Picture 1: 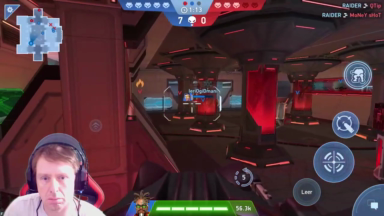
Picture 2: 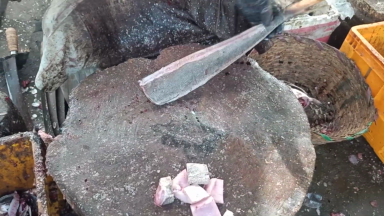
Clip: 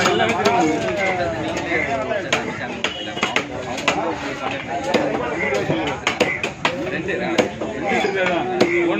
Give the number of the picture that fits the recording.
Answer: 2